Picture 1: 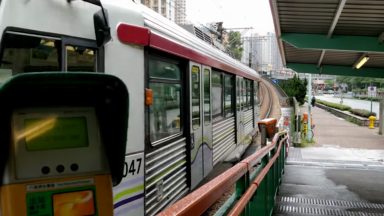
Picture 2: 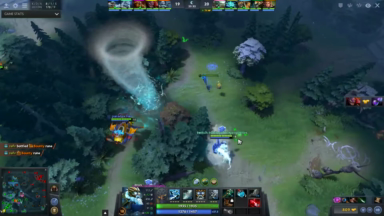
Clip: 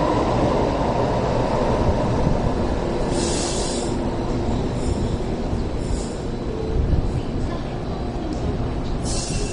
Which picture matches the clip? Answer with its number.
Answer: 1